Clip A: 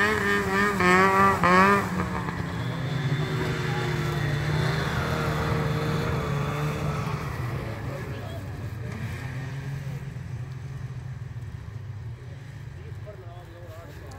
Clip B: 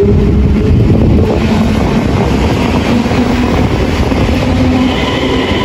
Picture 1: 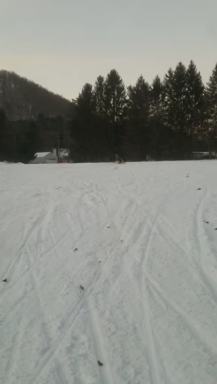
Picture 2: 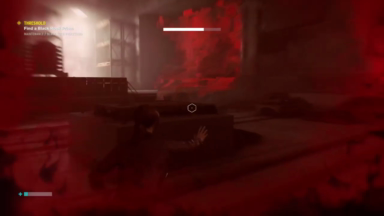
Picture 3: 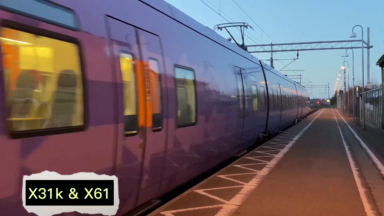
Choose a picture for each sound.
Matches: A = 1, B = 3